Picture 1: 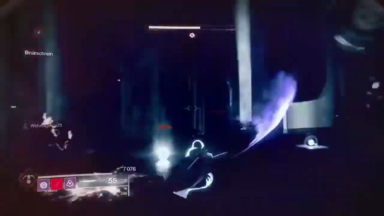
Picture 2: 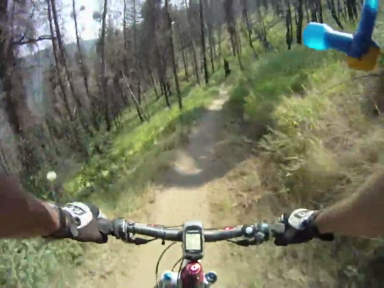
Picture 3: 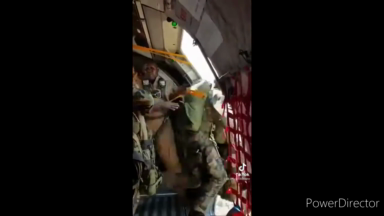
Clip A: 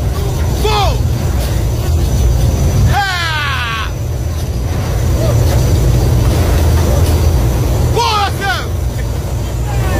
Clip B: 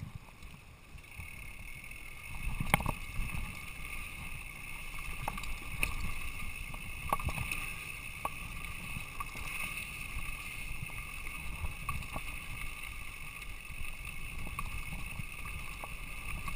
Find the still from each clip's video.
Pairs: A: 3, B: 2